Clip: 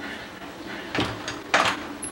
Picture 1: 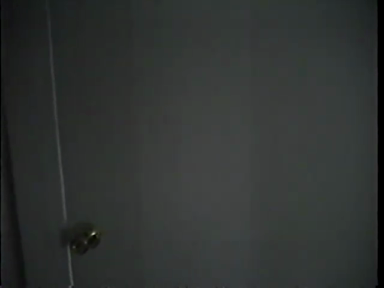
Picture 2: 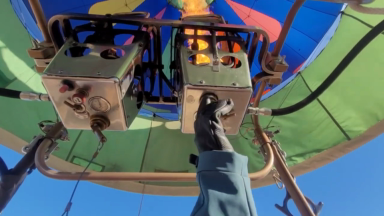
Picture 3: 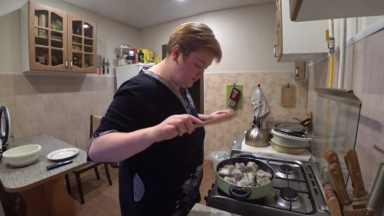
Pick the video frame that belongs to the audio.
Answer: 1